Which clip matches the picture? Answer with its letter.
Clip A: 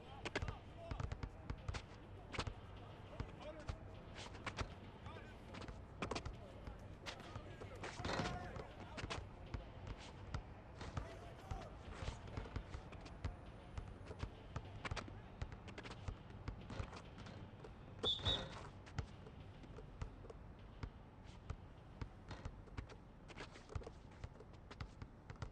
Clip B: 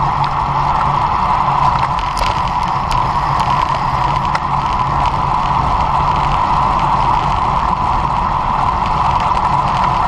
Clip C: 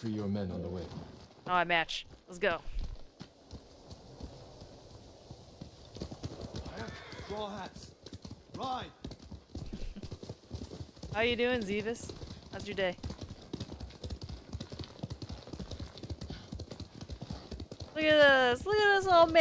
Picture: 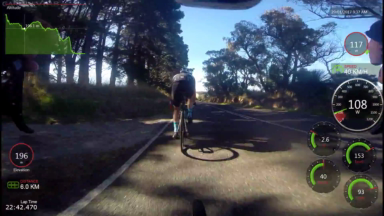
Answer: B